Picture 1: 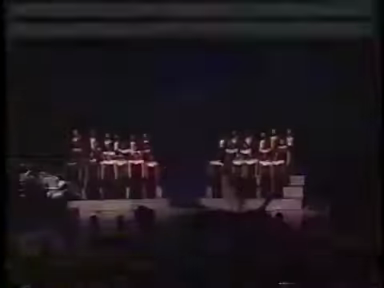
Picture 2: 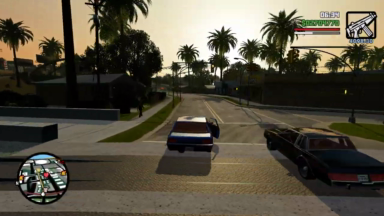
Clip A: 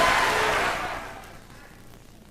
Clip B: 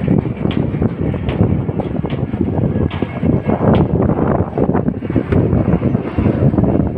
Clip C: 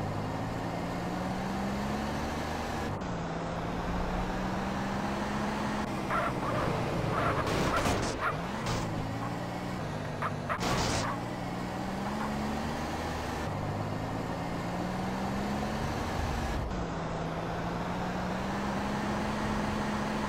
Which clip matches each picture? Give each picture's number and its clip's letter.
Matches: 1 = A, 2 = C